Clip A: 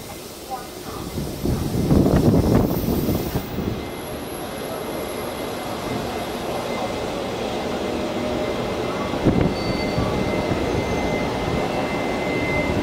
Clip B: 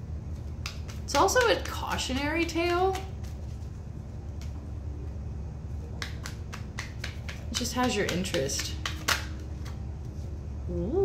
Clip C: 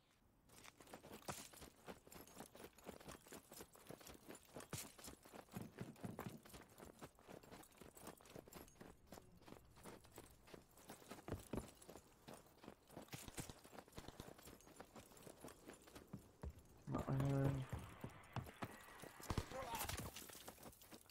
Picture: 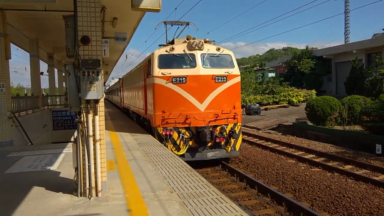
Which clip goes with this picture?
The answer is A